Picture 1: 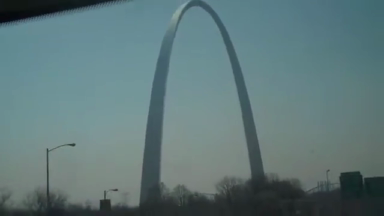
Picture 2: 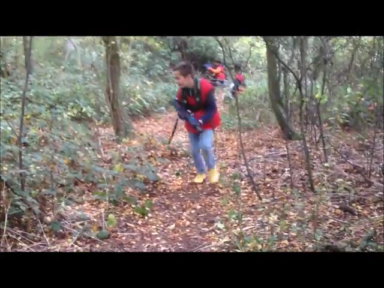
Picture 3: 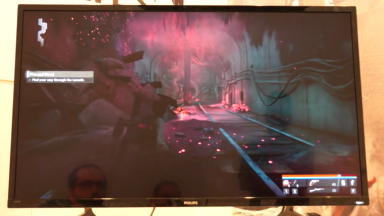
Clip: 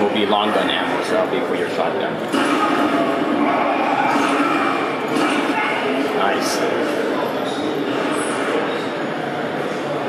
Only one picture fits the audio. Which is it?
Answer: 3